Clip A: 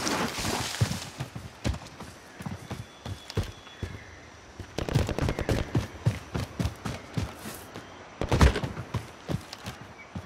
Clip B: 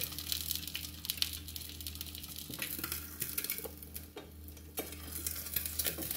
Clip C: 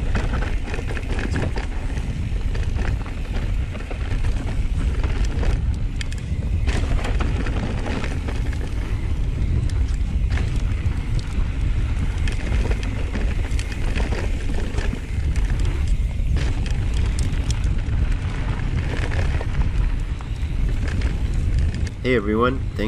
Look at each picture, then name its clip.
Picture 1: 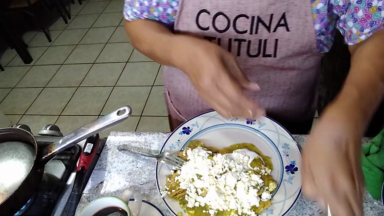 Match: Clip B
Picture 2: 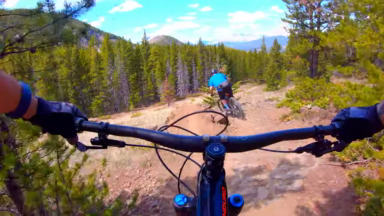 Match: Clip C